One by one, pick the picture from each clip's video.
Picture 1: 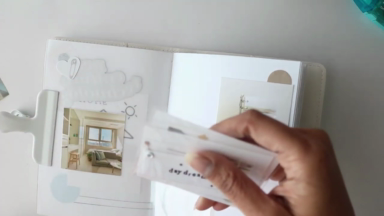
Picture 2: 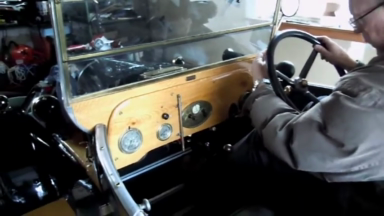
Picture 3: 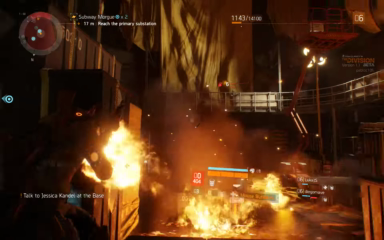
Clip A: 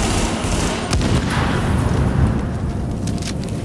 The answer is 3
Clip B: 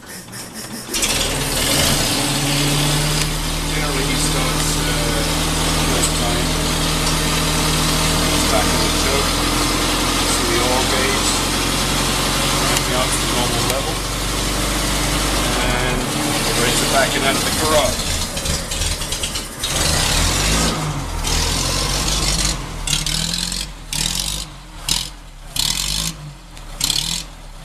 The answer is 2